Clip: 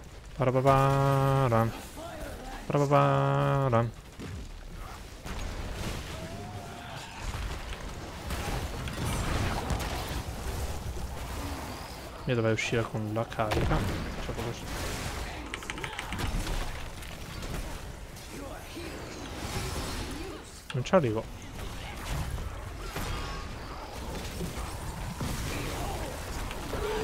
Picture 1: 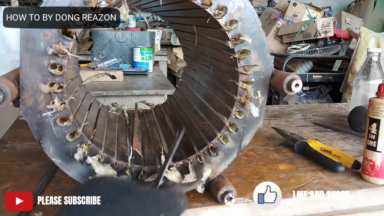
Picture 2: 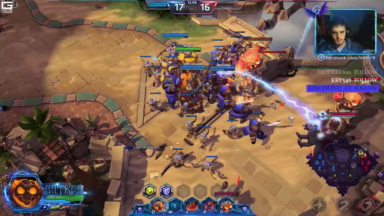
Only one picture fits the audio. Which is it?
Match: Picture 2